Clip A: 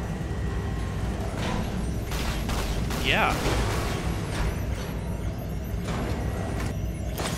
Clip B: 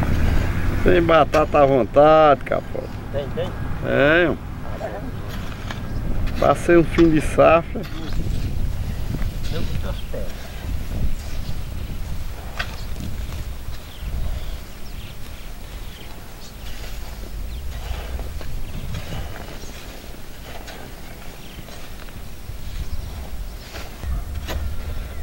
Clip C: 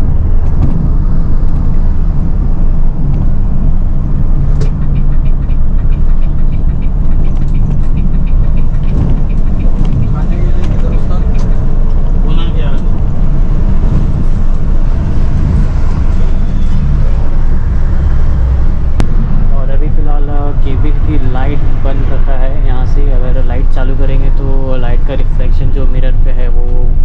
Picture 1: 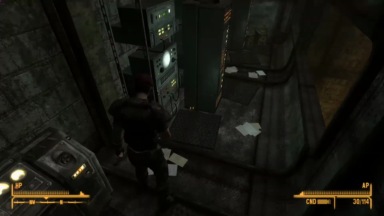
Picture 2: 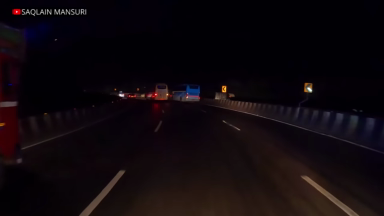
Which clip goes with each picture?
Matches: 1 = A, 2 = C